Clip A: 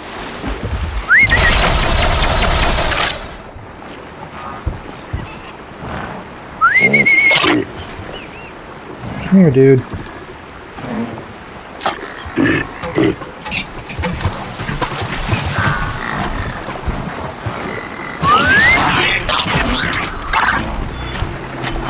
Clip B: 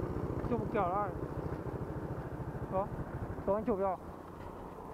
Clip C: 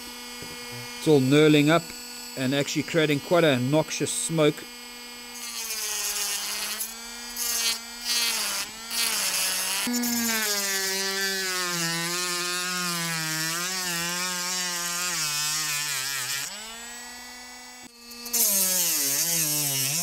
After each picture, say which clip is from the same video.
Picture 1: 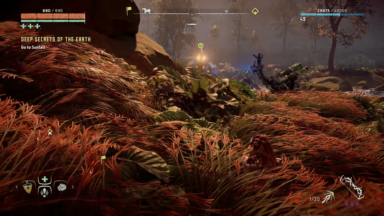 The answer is A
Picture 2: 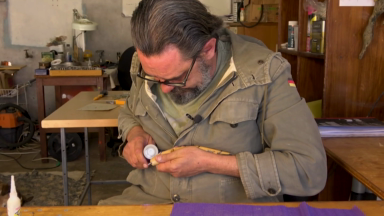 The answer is C